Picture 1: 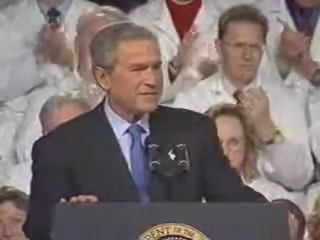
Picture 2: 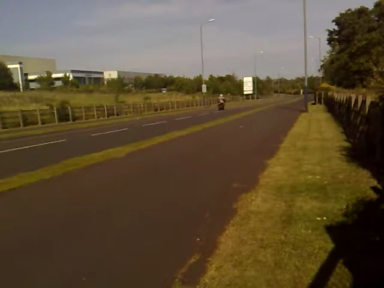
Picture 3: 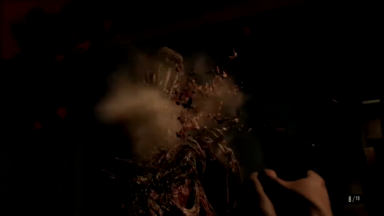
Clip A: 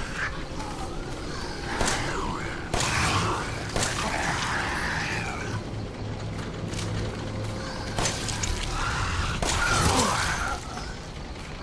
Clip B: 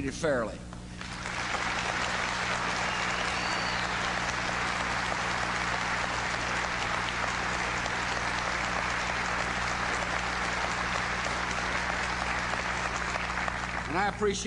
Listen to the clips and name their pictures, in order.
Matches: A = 3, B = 1